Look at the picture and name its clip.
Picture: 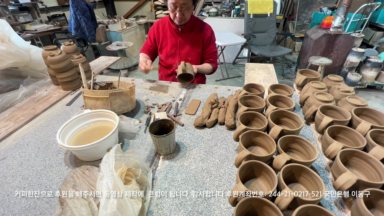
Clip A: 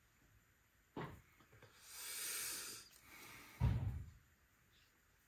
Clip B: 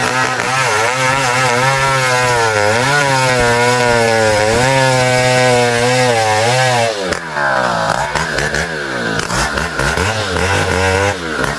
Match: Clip A